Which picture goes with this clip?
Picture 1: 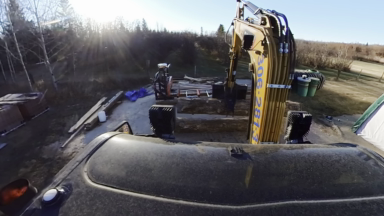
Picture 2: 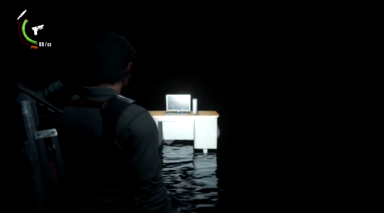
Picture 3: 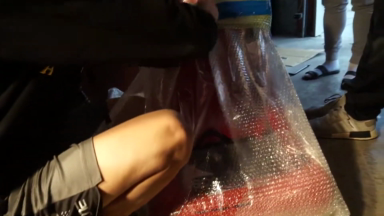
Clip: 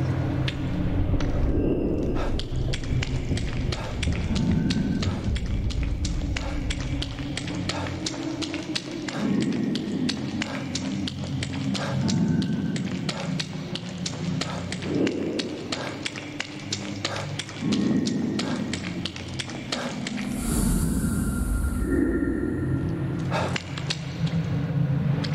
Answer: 2